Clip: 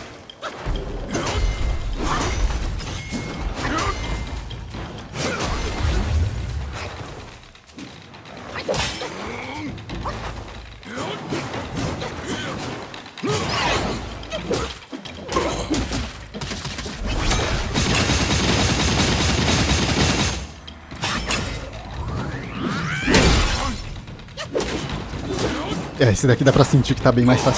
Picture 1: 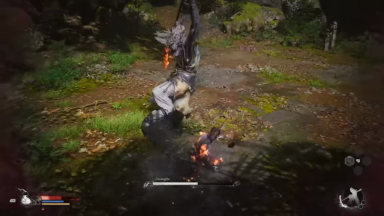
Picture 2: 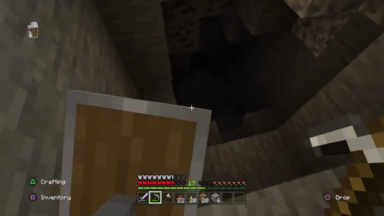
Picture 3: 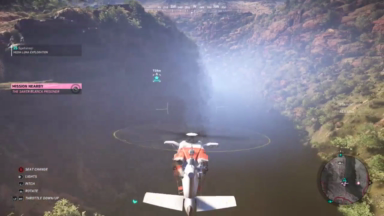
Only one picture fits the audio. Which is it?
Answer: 1